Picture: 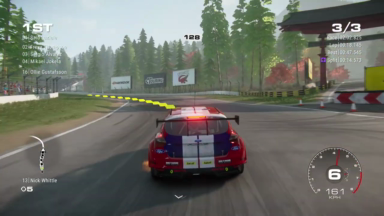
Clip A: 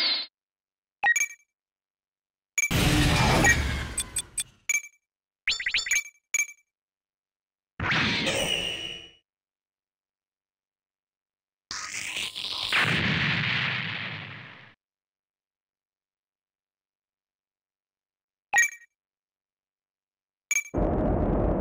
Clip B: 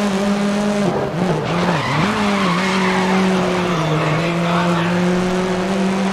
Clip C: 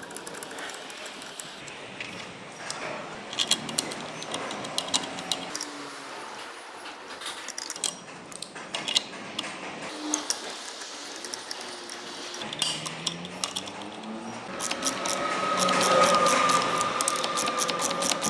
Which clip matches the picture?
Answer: B